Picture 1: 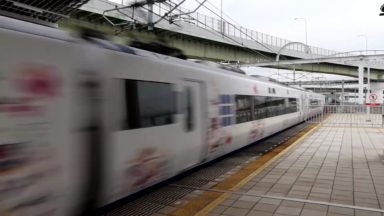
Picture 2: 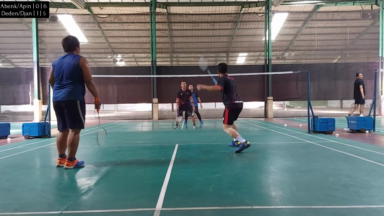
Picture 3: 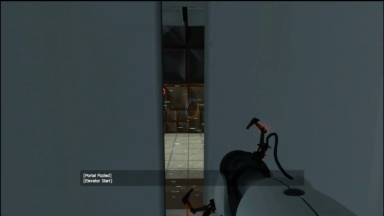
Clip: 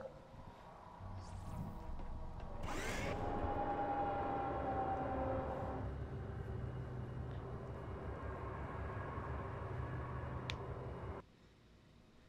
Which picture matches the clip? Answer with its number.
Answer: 3